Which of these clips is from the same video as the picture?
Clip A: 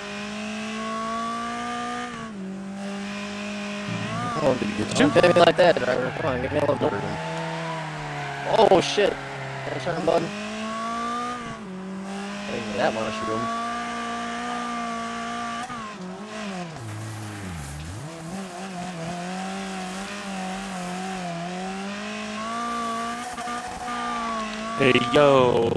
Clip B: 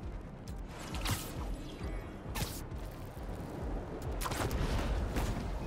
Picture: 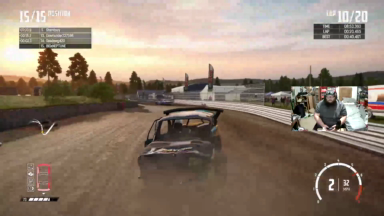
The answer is A